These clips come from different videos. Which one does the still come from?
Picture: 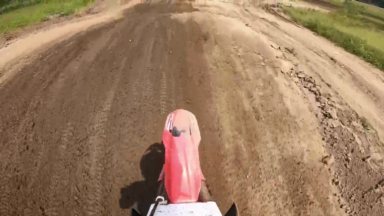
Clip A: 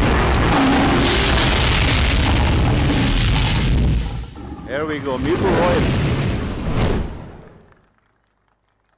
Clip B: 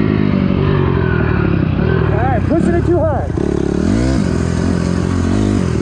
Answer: B